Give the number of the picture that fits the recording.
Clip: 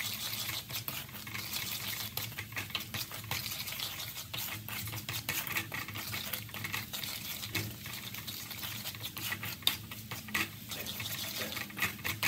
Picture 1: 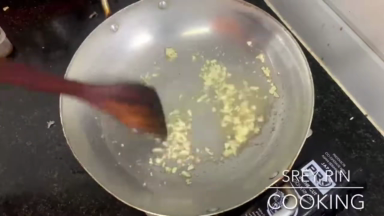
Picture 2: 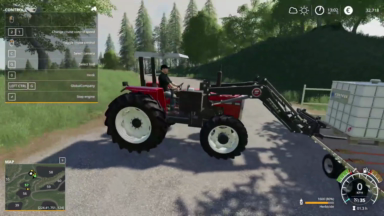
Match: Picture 1